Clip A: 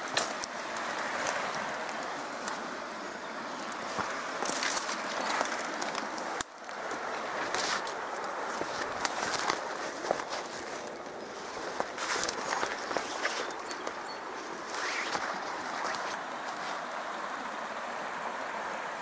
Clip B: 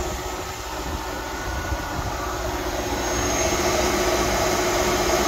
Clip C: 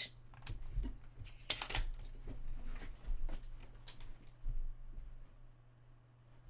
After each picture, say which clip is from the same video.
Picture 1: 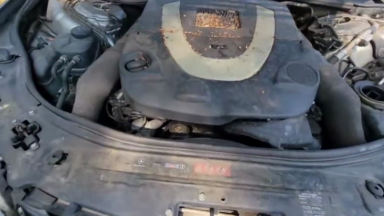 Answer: B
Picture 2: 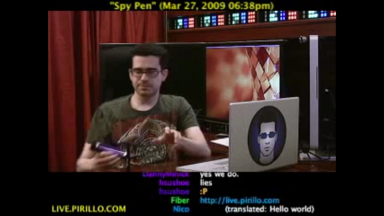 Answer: C